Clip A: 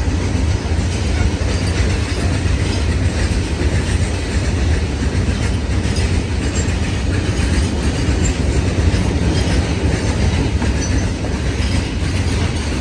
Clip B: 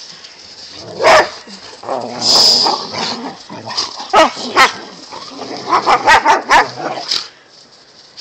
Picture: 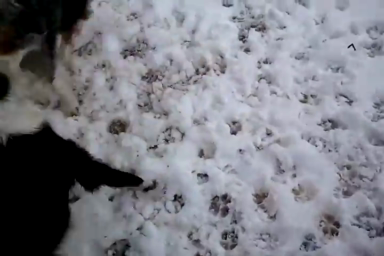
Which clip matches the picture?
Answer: B